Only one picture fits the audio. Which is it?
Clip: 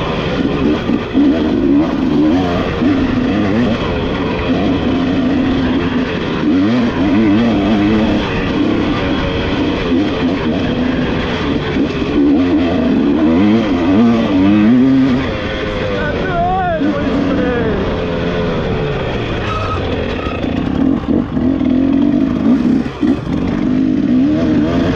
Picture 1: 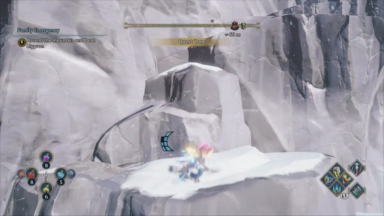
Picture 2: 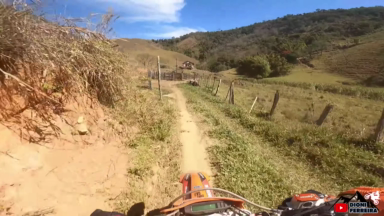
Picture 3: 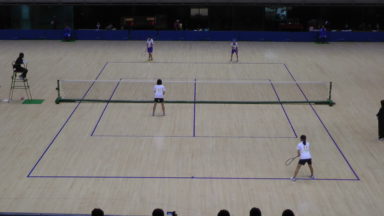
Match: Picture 2